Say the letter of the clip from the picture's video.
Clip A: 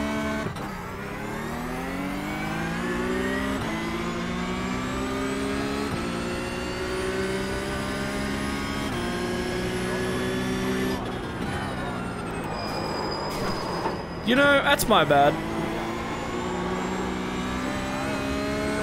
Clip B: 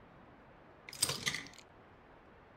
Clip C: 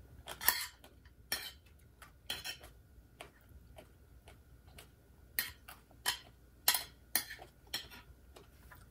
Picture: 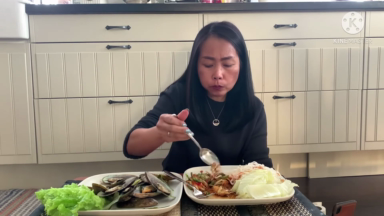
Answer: C